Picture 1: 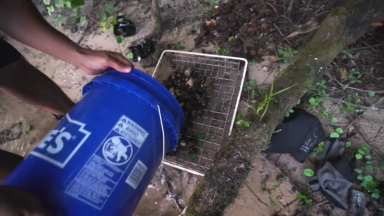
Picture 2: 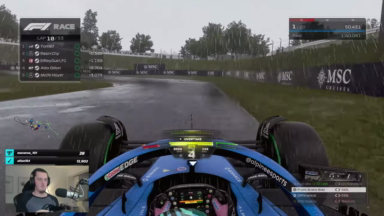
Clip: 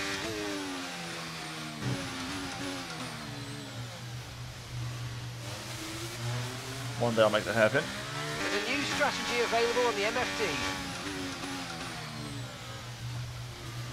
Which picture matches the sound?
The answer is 2